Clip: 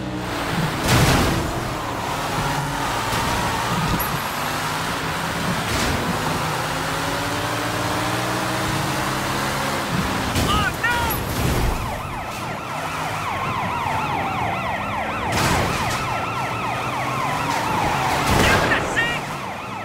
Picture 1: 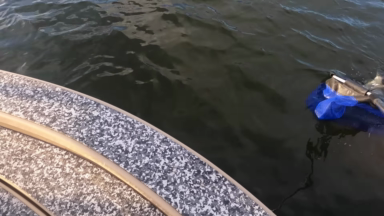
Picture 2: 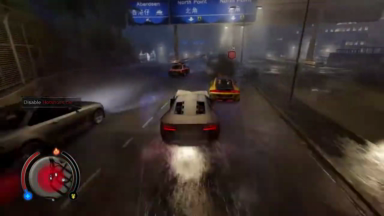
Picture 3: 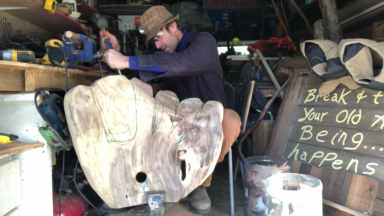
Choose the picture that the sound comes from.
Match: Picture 2